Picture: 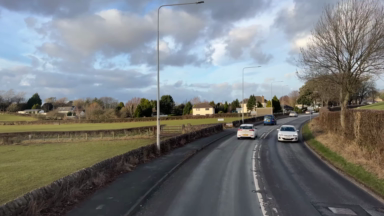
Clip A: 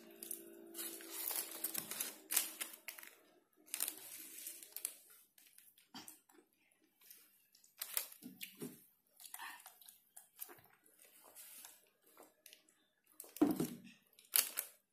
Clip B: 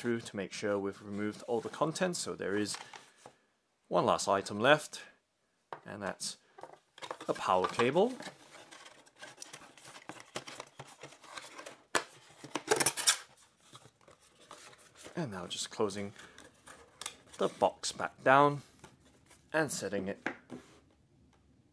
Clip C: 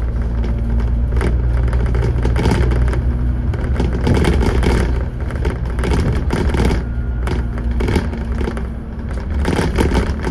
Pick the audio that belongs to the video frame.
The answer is C